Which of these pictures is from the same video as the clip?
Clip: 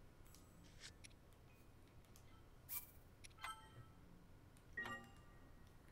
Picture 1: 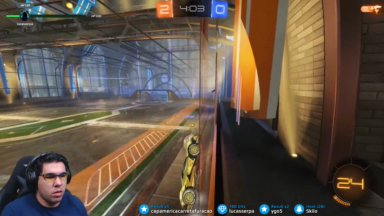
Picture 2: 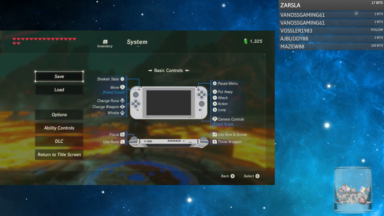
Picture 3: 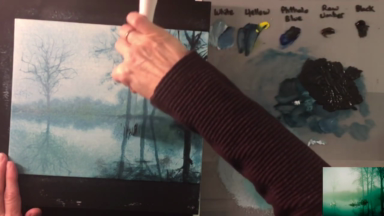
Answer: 2